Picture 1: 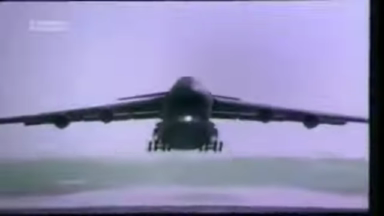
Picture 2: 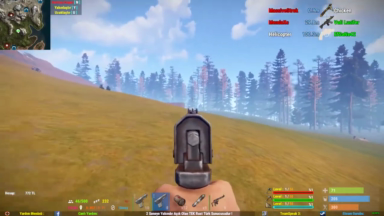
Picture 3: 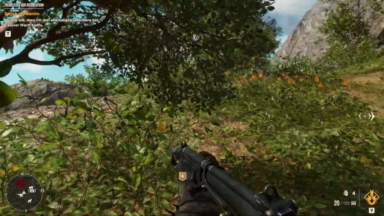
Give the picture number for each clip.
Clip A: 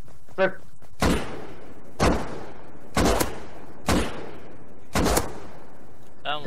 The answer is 2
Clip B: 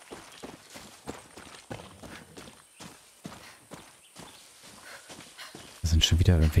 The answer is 3